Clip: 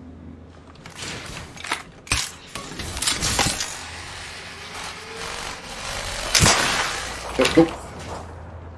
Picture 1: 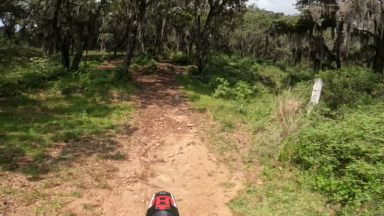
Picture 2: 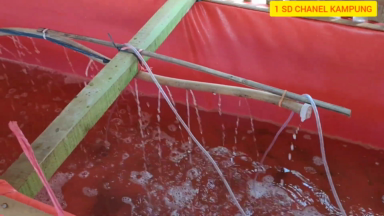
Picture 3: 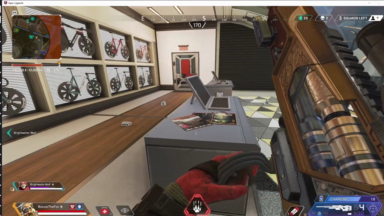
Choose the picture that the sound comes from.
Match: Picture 3